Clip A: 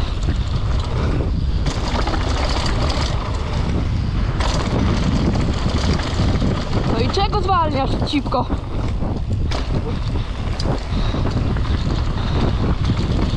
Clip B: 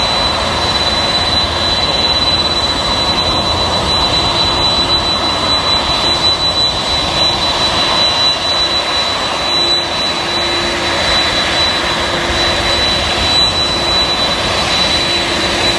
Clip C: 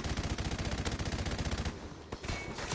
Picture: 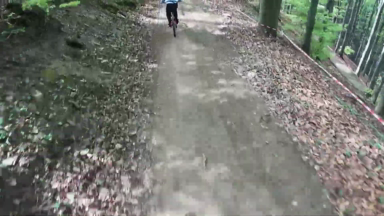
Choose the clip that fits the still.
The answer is A